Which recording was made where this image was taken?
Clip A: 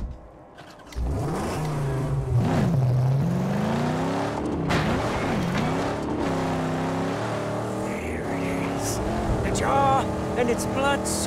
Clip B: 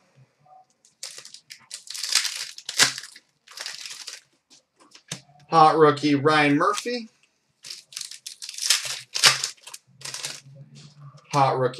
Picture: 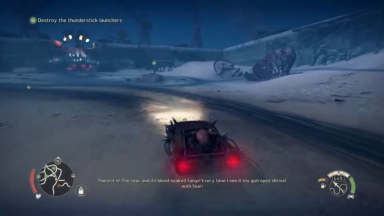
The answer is A